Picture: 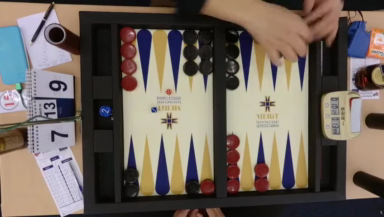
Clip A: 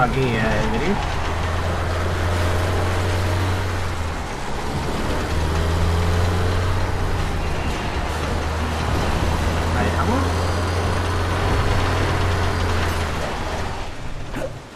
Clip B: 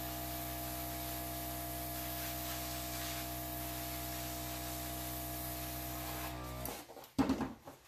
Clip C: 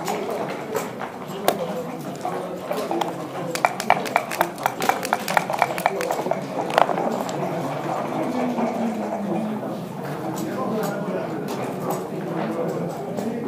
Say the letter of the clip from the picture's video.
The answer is C